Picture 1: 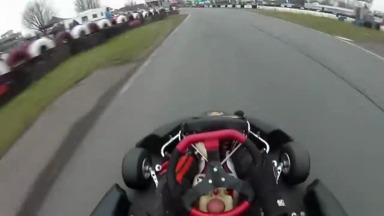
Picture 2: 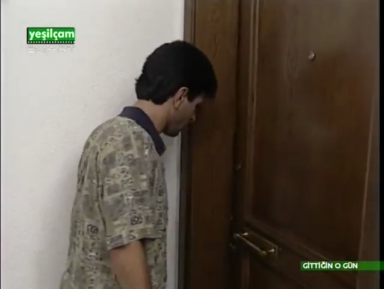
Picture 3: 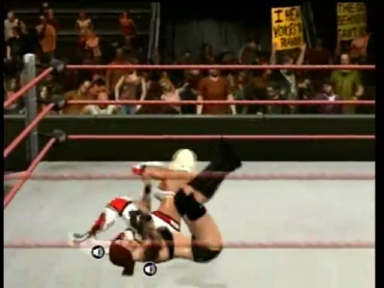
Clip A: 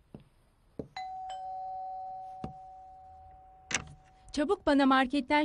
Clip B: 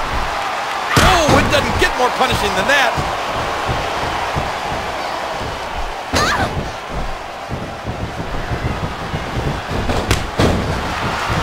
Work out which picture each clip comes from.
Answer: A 2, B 3